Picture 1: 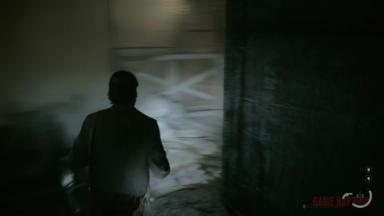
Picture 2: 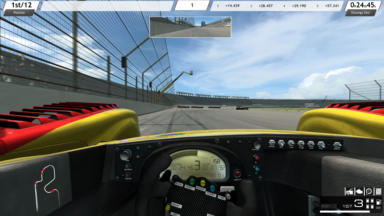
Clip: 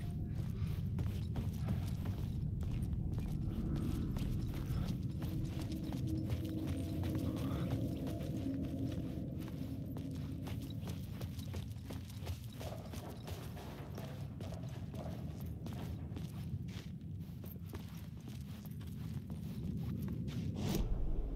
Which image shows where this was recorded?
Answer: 1